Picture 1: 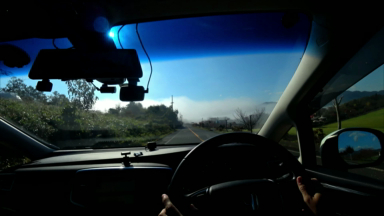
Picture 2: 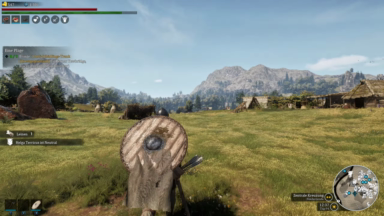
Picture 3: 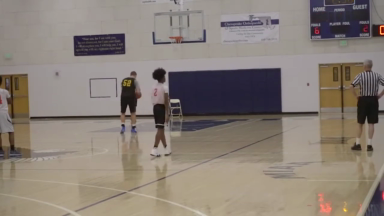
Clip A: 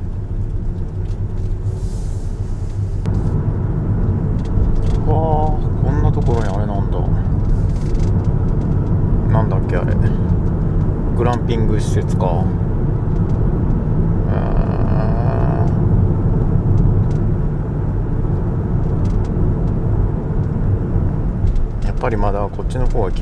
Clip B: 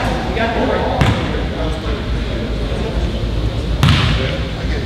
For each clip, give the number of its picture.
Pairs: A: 1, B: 3